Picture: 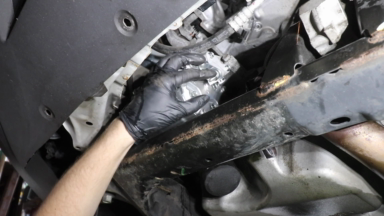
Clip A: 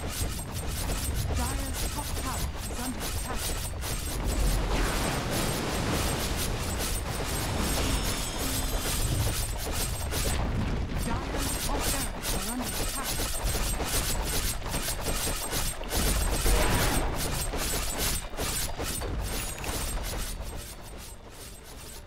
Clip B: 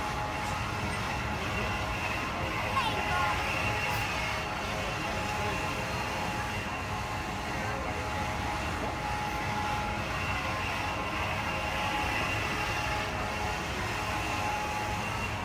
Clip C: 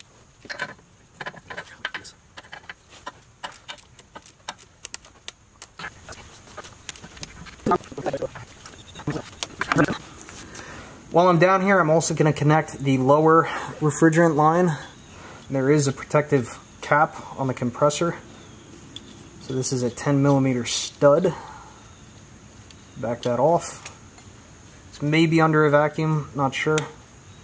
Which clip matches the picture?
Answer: C